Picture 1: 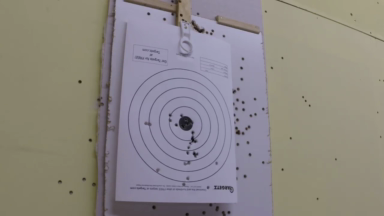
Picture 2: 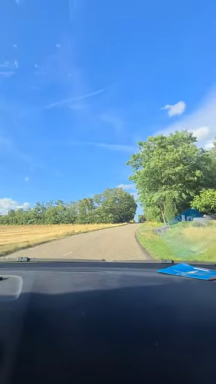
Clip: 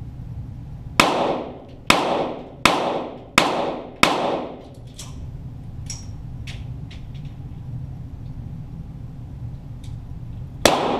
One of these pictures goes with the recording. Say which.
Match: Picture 1